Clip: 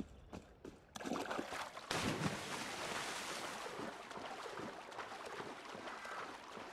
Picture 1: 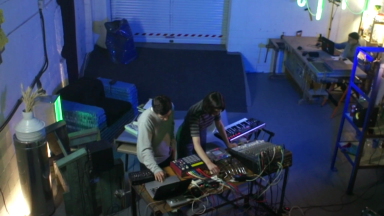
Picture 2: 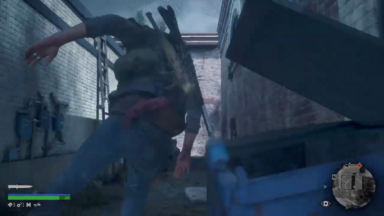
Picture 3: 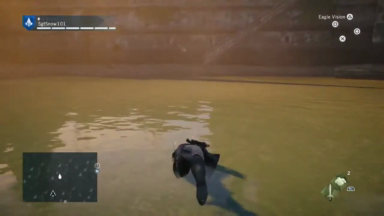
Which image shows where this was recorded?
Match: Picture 3